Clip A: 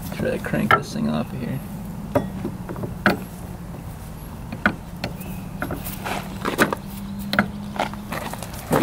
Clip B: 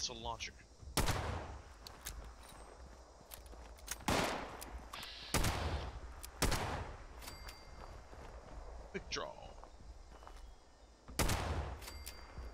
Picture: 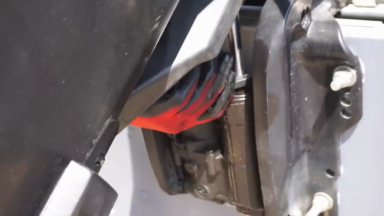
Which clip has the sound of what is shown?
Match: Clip A